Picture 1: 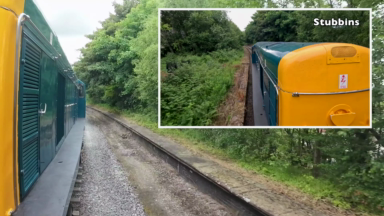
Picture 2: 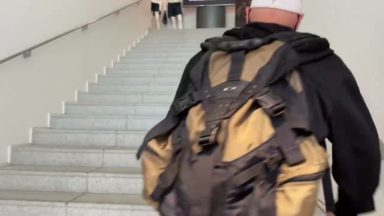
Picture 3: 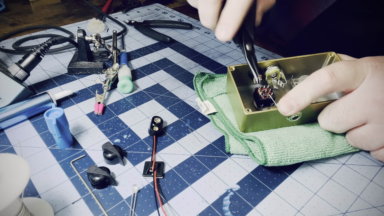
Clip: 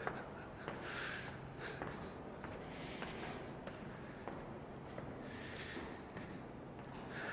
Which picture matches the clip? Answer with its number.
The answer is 2